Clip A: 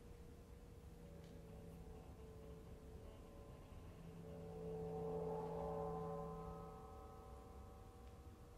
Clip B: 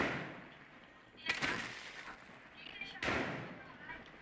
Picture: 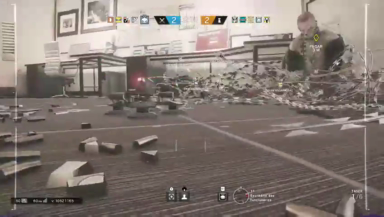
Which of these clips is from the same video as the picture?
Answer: B